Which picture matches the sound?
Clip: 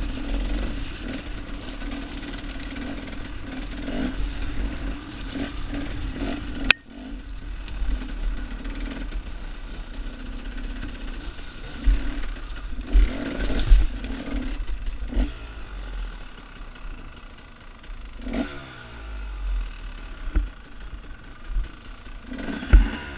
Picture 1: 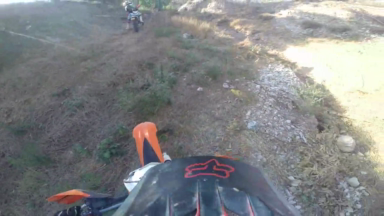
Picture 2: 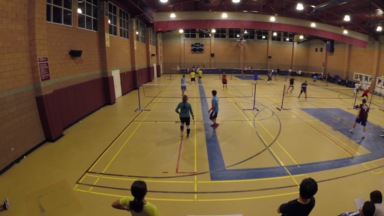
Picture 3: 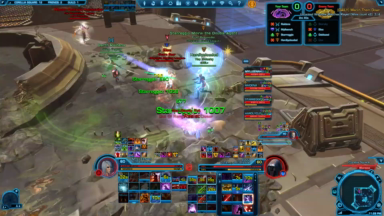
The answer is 1